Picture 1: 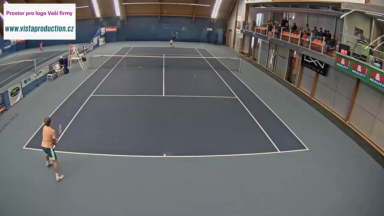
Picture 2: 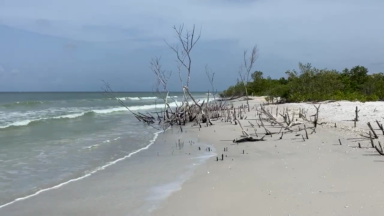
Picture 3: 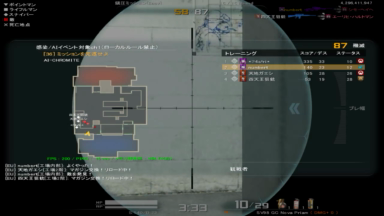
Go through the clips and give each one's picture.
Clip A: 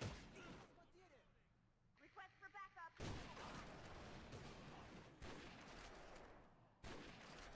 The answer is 3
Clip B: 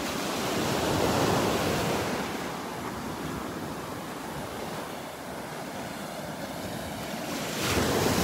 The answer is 2